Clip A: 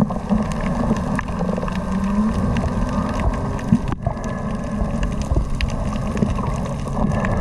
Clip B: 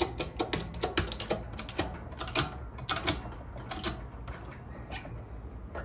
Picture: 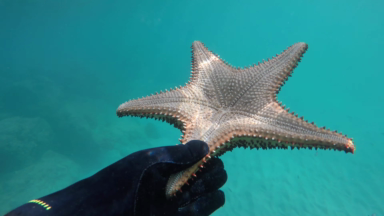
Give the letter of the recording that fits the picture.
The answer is A